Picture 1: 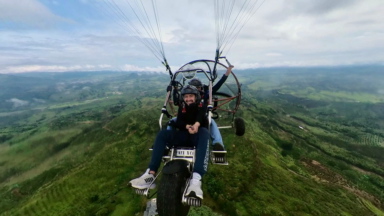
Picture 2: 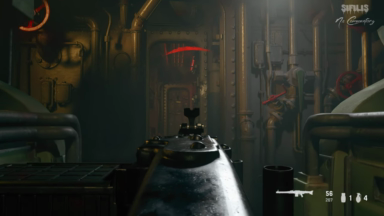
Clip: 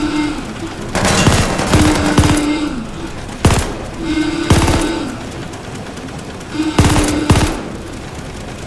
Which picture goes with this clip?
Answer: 2